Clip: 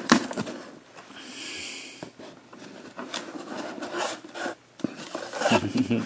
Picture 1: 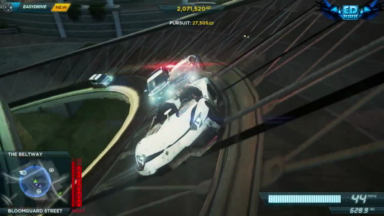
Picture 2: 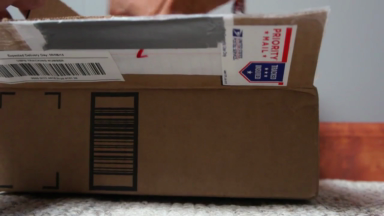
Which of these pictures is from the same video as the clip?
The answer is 2